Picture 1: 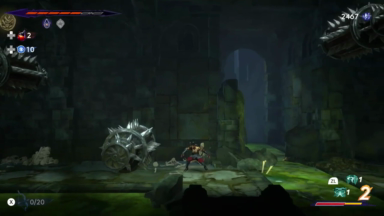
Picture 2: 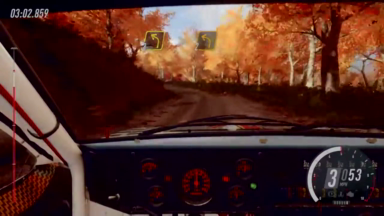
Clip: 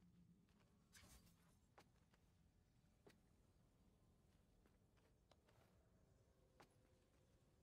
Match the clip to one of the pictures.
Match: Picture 1